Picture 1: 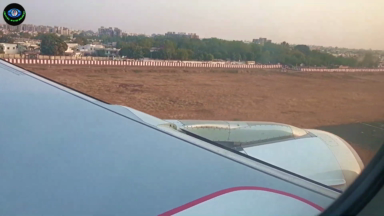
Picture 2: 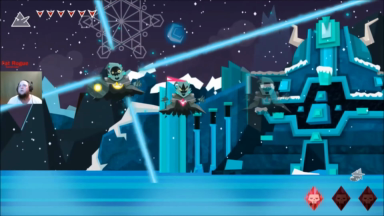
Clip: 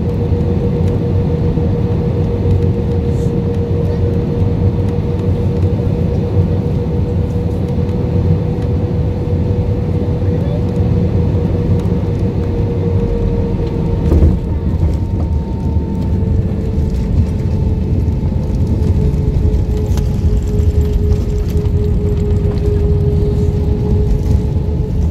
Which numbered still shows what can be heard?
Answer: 1